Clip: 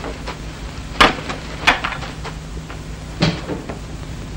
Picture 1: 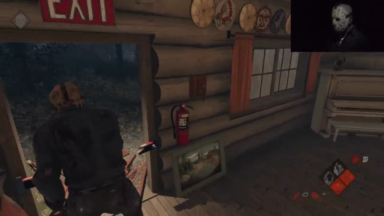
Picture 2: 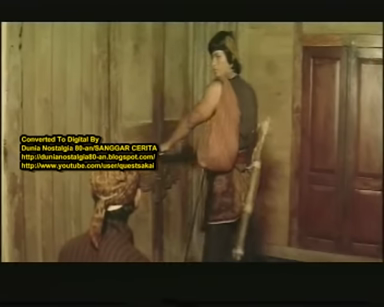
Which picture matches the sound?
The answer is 2